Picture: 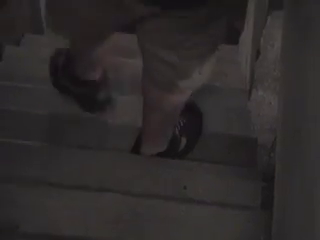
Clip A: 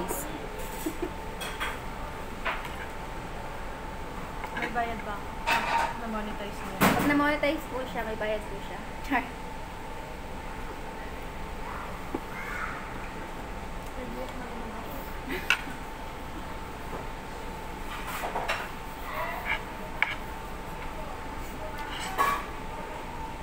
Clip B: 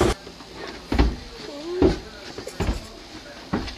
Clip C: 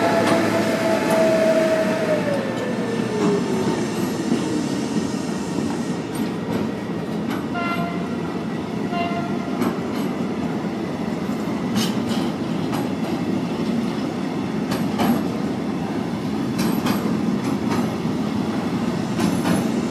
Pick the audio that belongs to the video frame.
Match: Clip B